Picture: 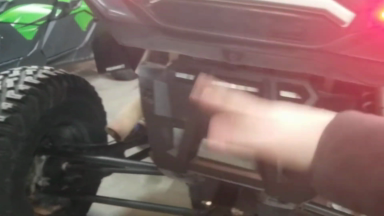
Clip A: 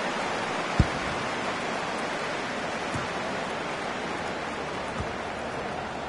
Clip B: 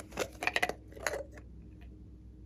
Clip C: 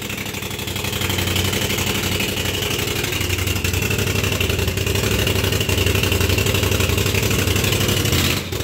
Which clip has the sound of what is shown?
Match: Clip C